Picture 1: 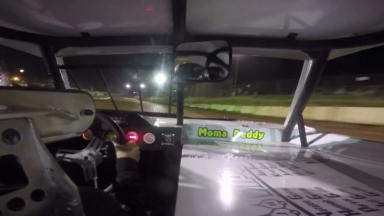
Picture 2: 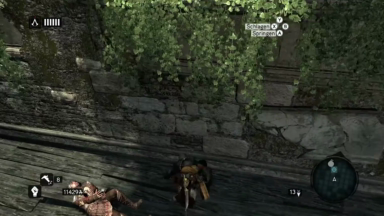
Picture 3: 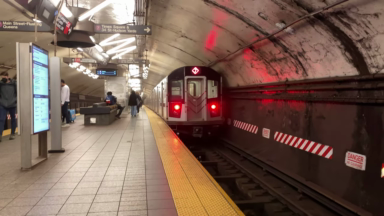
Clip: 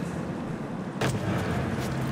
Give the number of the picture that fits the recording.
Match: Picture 2